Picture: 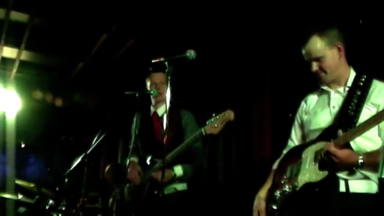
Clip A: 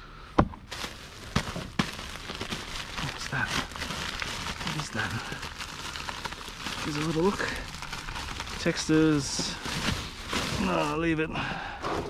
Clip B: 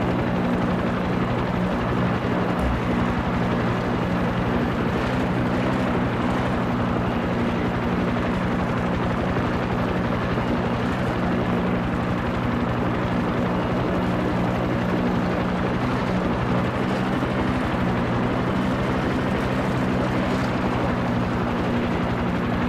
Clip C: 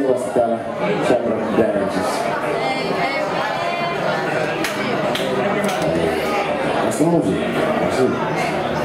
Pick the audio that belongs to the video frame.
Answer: C